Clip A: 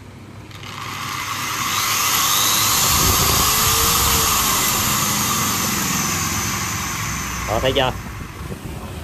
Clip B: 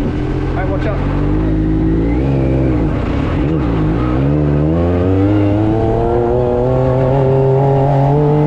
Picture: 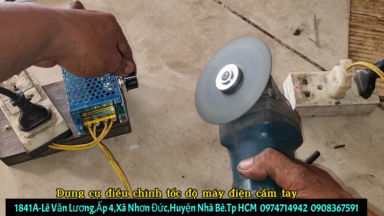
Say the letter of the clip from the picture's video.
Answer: A